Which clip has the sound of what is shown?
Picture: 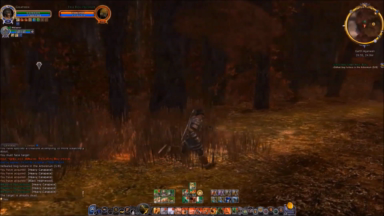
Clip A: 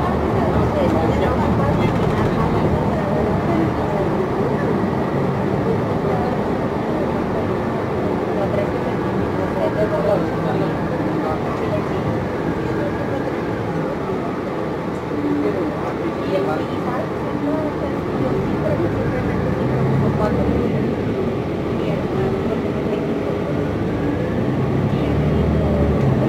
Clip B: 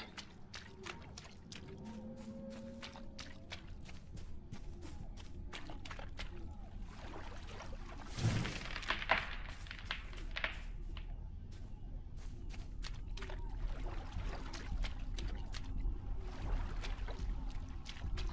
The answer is B